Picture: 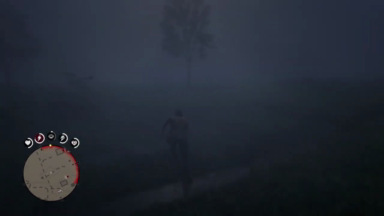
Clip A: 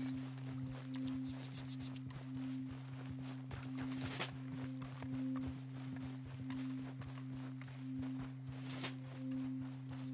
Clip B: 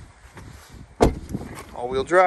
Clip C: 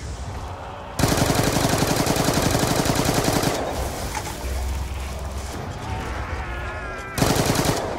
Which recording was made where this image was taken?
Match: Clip A